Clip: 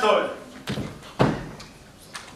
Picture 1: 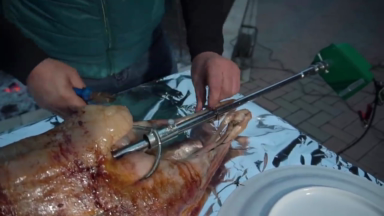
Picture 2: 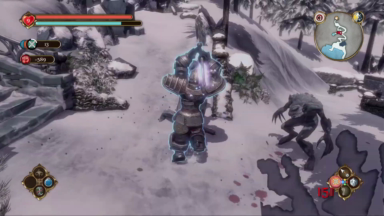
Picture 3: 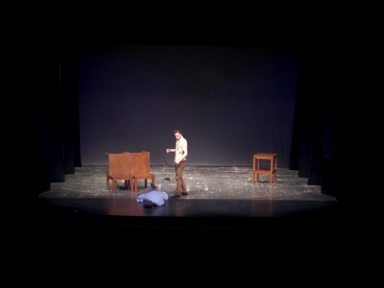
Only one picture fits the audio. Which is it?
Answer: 3